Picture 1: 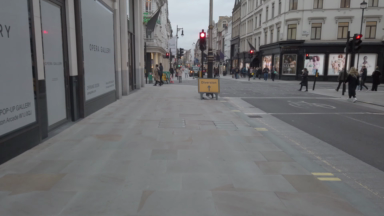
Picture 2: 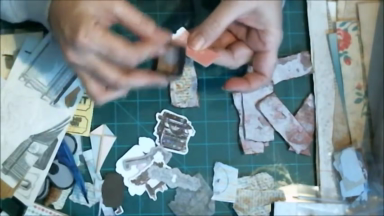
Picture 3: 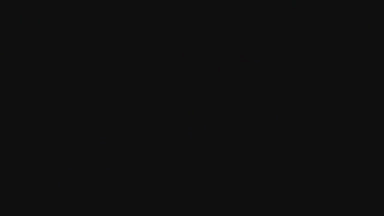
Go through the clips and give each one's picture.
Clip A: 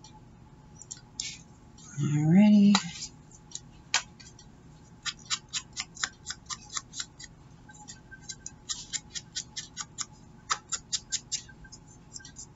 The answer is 2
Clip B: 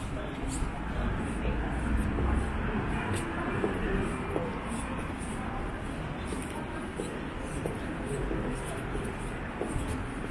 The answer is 1